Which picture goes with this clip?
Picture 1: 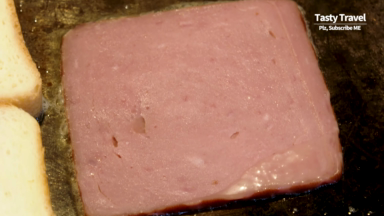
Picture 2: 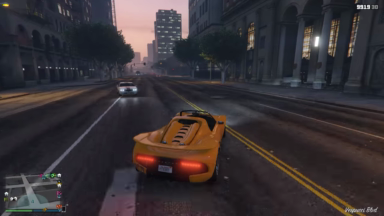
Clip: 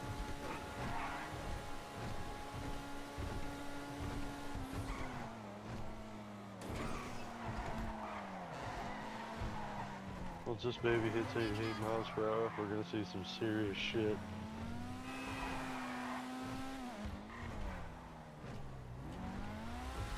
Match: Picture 2